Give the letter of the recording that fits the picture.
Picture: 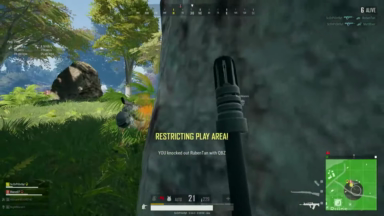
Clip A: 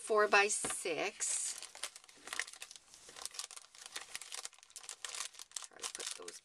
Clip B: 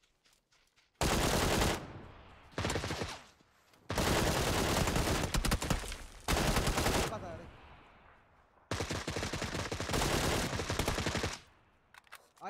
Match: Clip B